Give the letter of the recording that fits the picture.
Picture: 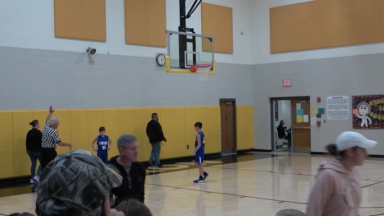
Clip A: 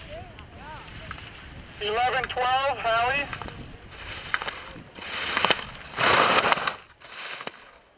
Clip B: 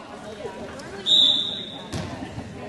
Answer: B